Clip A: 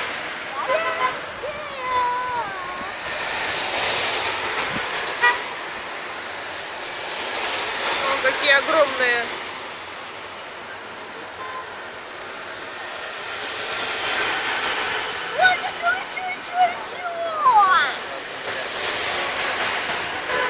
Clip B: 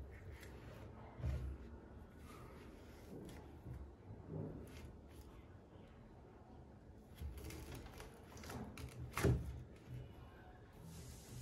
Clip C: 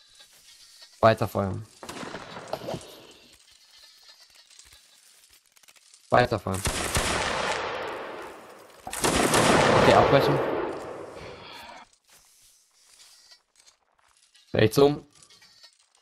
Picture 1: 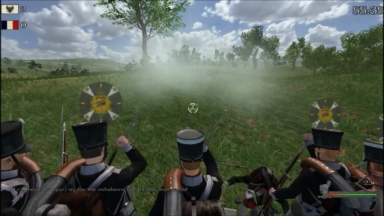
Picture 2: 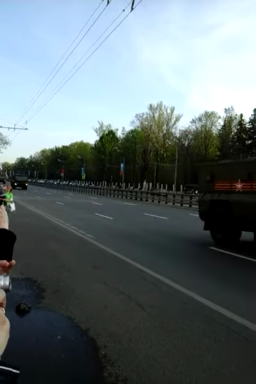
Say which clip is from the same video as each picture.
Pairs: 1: C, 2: A